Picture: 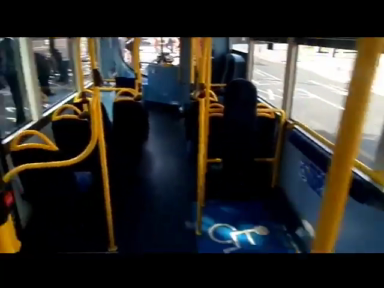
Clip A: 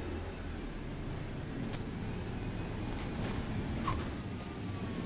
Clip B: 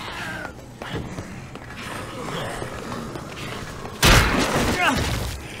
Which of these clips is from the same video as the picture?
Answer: A